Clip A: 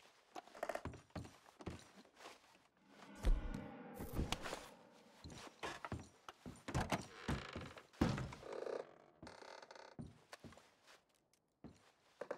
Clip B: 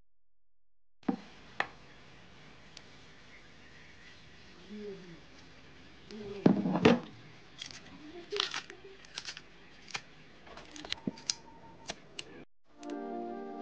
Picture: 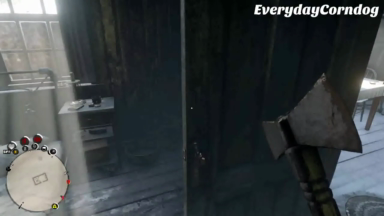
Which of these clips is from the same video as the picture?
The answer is A